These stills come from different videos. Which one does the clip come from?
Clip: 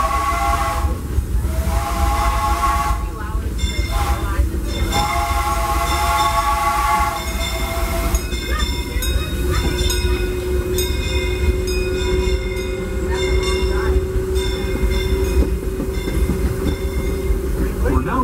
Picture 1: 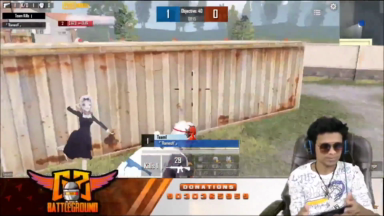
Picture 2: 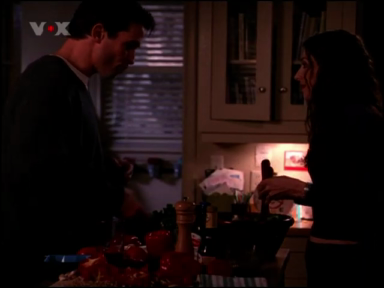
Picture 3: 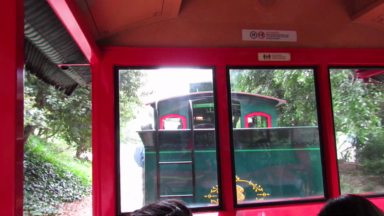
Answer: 3